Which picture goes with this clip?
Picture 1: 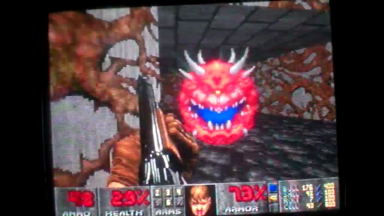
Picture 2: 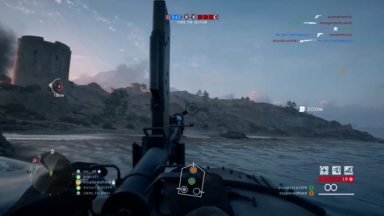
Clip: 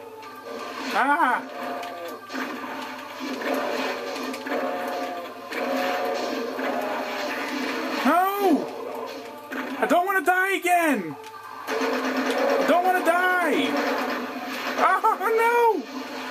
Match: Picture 1